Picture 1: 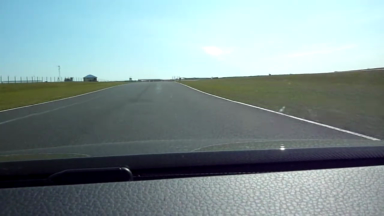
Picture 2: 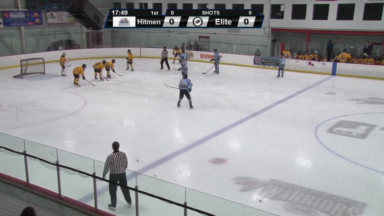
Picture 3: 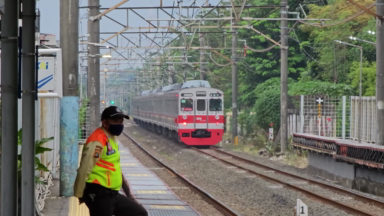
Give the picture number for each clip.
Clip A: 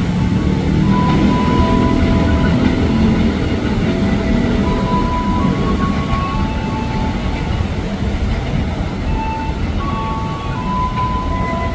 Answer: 3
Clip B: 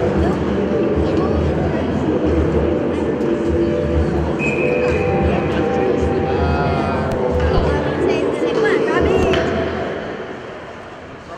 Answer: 2